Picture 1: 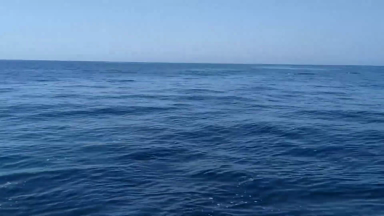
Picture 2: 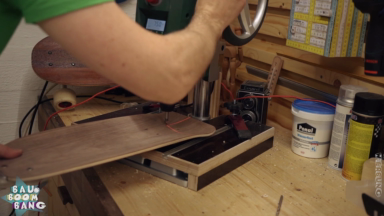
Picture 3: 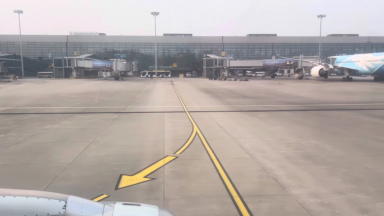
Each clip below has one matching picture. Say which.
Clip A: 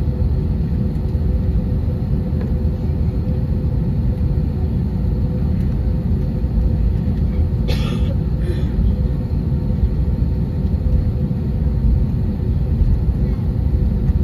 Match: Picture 3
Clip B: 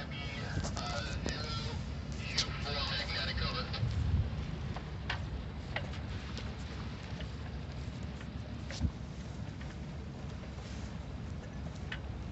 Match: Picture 1